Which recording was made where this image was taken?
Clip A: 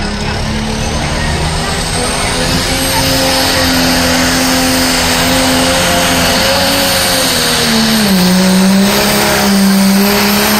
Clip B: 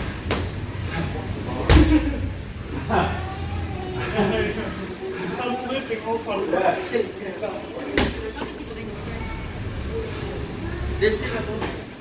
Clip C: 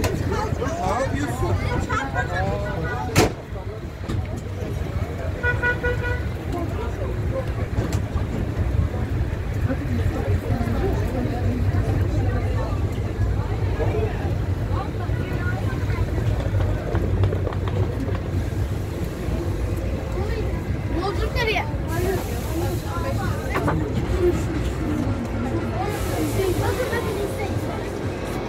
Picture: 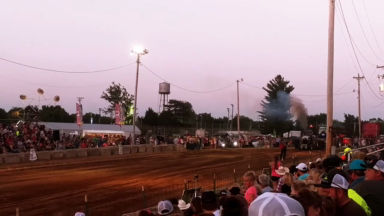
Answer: A